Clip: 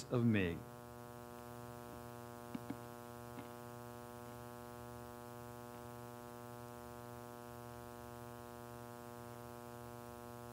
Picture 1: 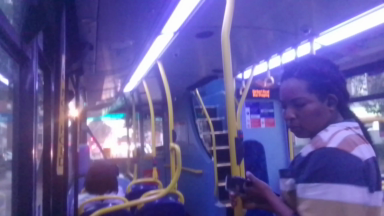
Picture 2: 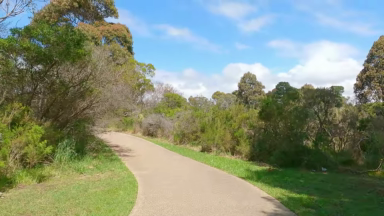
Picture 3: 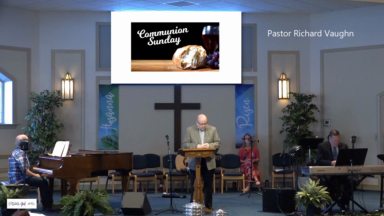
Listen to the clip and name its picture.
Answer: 3